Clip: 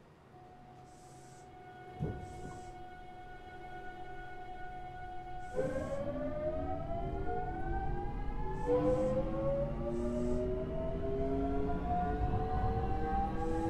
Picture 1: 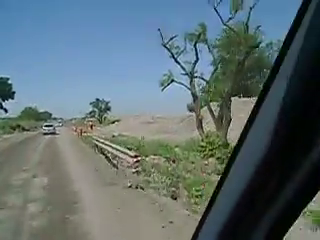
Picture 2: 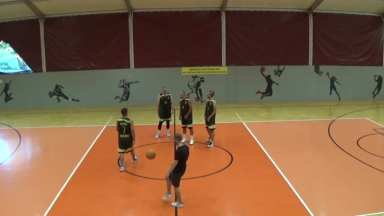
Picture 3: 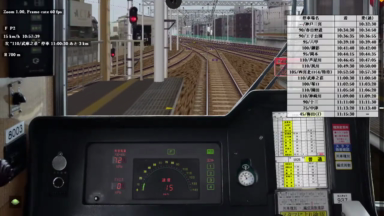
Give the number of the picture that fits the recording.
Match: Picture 3